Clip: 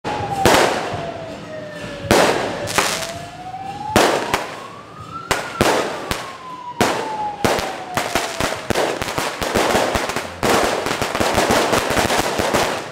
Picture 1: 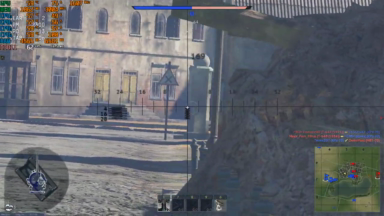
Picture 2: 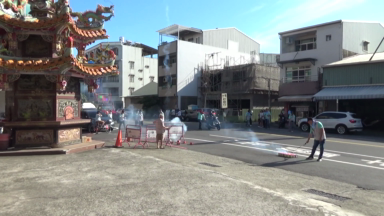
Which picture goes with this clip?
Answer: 2